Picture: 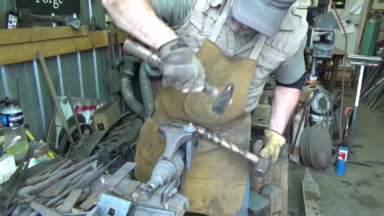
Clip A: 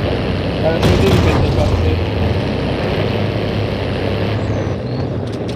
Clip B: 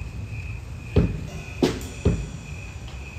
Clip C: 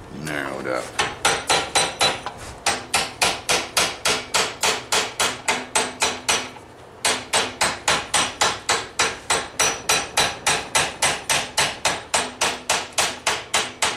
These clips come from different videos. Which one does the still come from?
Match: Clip C